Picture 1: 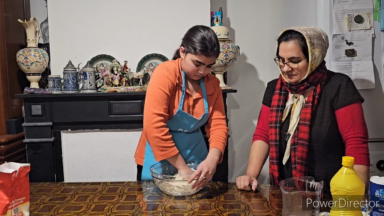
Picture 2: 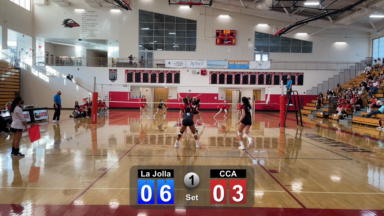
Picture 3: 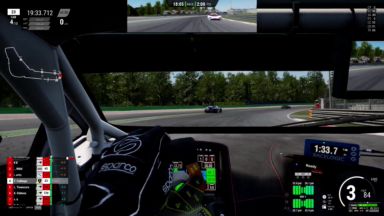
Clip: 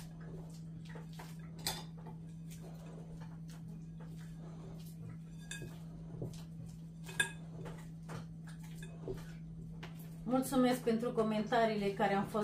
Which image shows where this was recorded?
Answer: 1